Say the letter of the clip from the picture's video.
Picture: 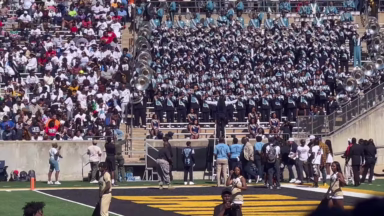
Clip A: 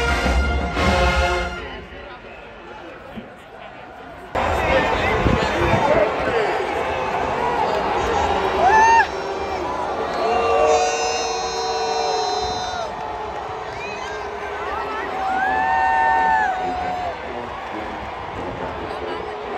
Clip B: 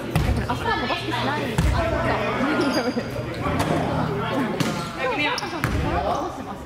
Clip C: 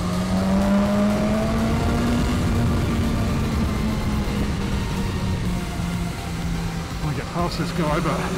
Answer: A